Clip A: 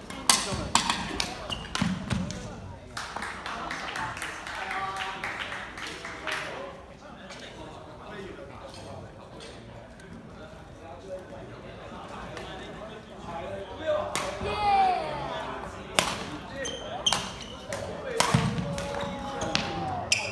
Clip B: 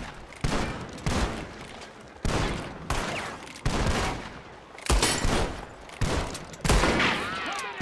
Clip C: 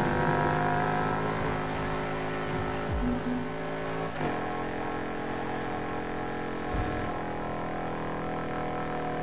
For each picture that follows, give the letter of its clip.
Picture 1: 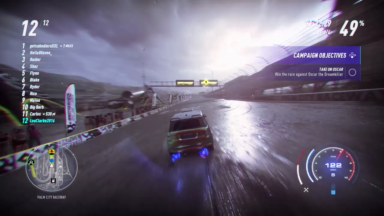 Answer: C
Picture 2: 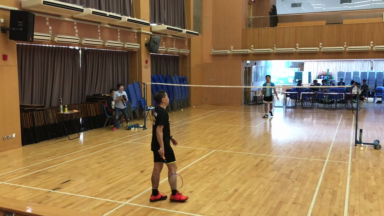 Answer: A